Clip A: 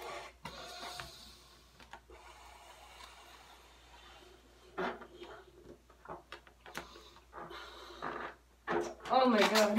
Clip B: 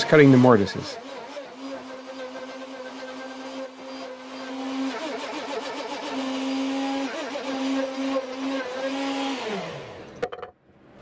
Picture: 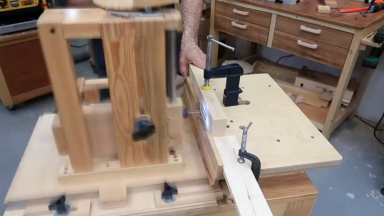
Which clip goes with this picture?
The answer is B